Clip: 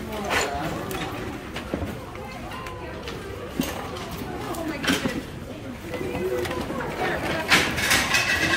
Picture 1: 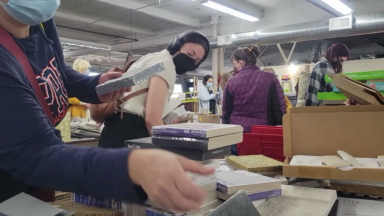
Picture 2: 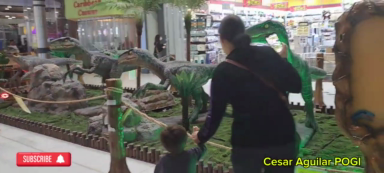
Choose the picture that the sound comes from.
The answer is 1